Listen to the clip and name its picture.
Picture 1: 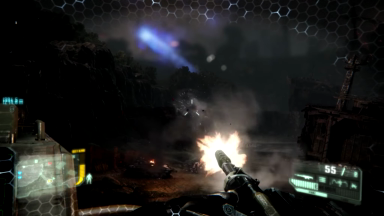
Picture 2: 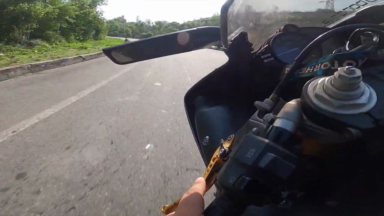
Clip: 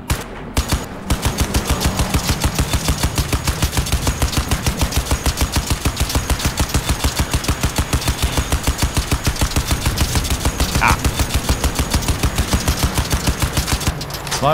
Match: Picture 1